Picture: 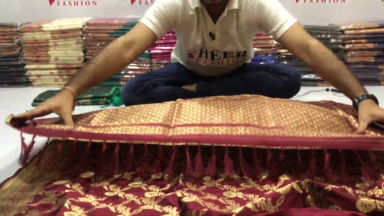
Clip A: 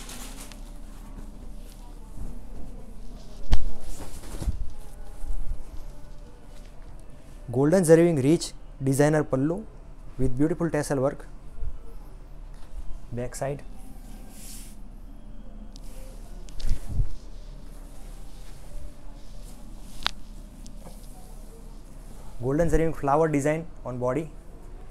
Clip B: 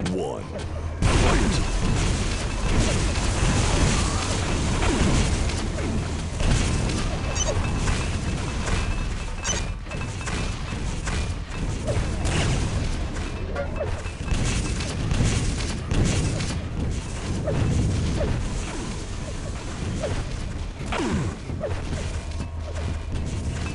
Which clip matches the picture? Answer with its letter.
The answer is A